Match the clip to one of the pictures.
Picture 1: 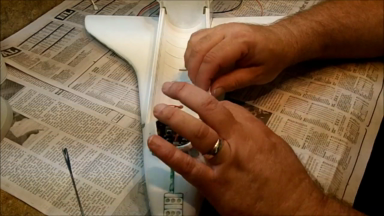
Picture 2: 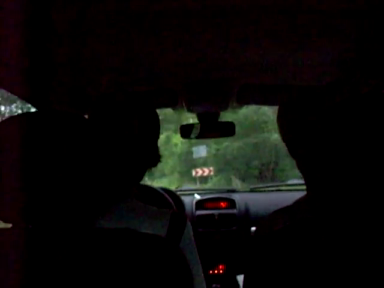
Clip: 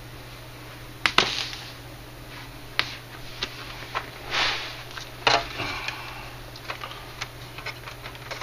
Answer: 1